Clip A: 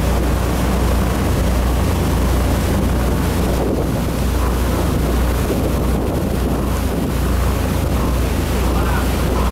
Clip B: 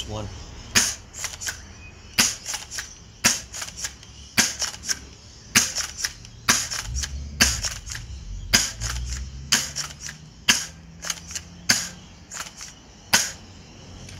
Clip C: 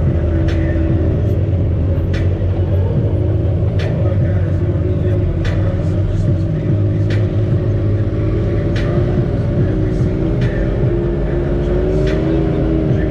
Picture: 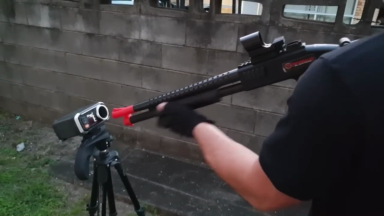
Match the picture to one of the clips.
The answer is B